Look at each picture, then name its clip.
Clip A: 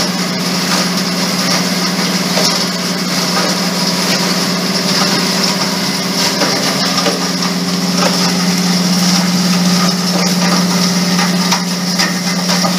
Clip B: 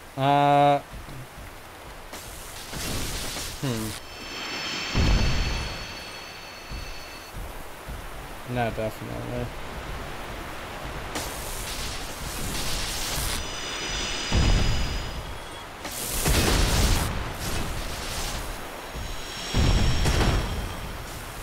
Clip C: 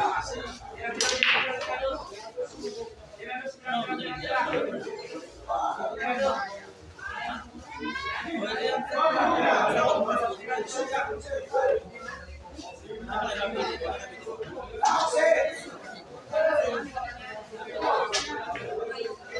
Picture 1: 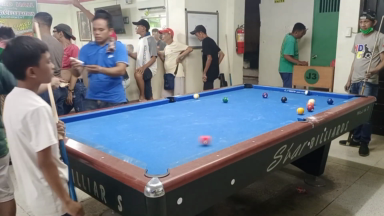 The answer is C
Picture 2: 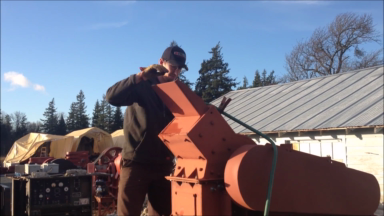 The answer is A